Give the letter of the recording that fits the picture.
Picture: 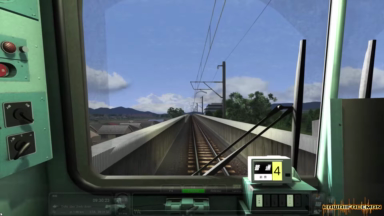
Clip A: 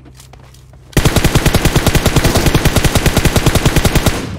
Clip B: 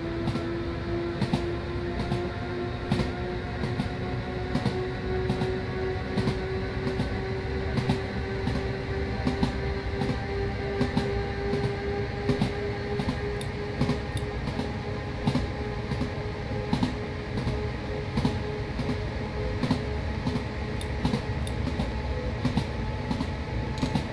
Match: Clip B